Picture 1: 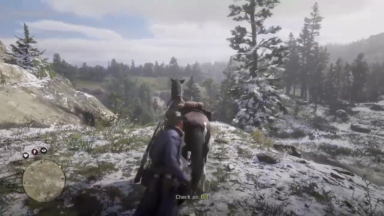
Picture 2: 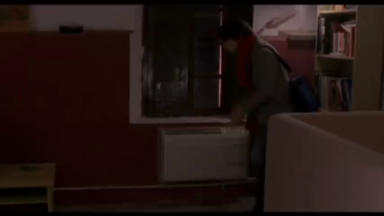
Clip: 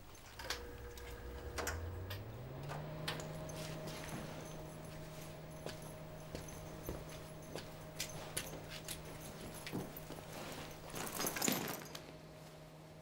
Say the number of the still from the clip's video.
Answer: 2